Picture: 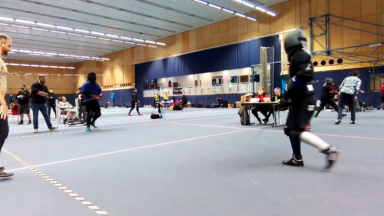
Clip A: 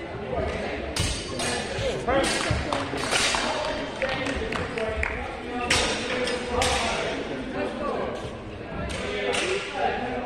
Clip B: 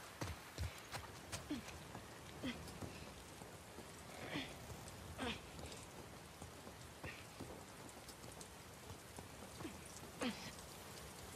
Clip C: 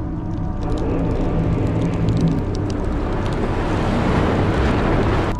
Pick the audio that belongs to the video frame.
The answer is A